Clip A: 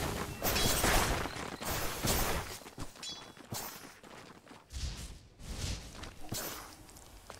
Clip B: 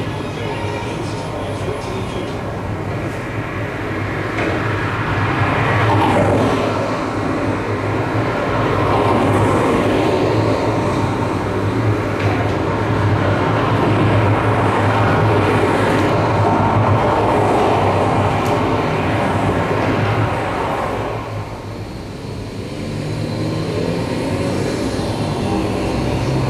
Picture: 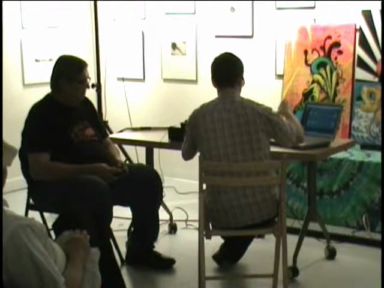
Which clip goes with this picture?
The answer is B